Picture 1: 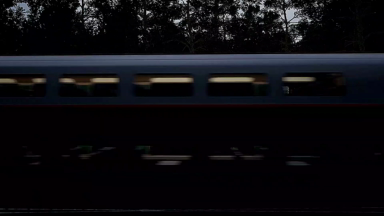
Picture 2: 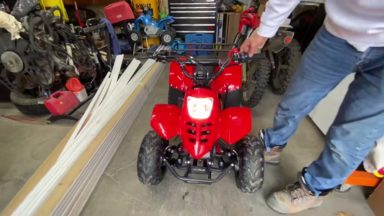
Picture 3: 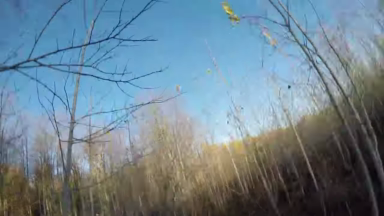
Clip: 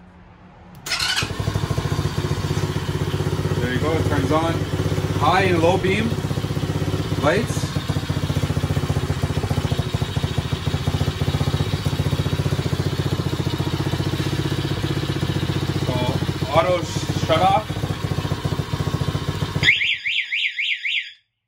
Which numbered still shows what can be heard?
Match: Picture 2